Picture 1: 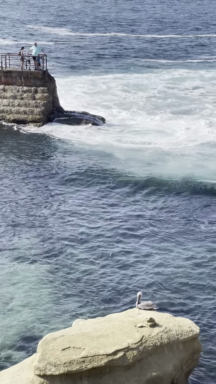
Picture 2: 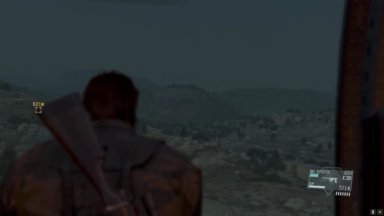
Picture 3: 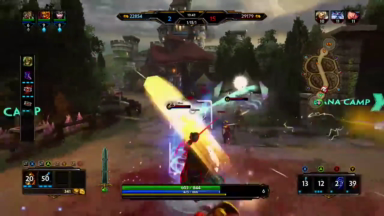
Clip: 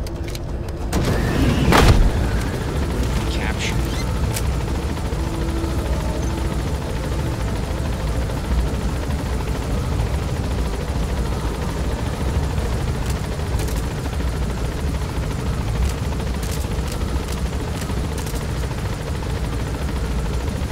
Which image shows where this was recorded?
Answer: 2